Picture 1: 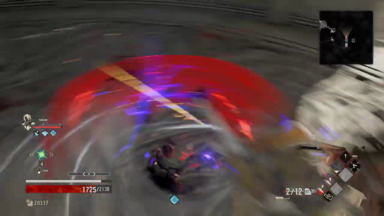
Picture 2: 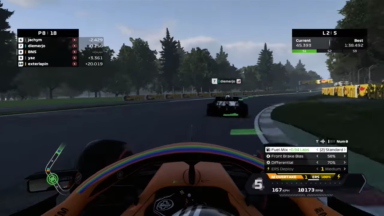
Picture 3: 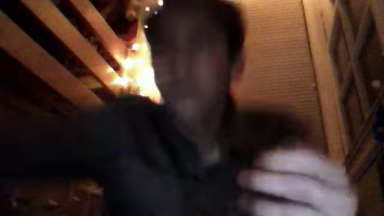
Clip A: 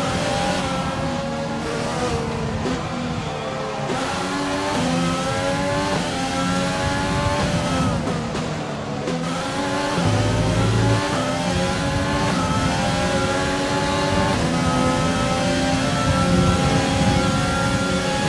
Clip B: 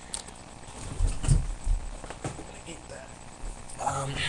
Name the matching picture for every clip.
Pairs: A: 2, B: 3